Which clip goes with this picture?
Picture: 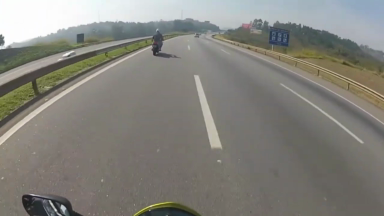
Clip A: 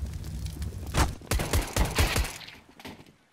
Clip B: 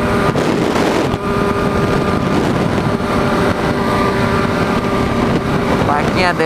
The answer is B